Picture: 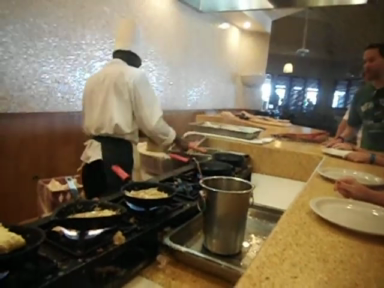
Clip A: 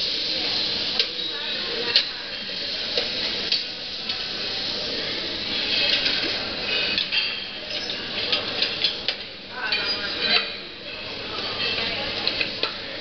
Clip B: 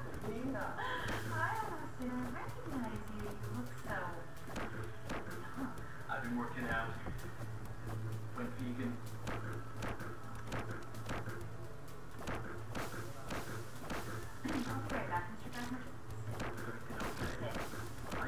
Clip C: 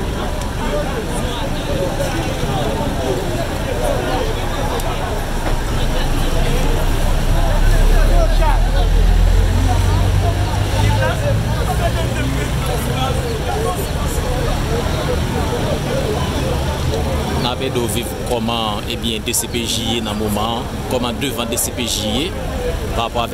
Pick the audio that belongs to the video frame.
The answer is A